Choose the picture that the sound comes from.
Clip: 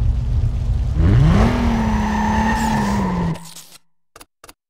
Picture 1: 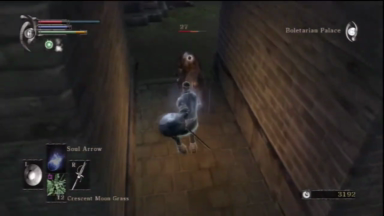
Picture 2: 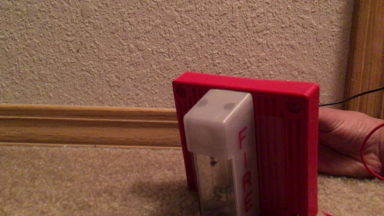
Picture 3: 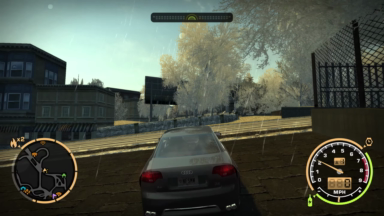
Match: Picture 3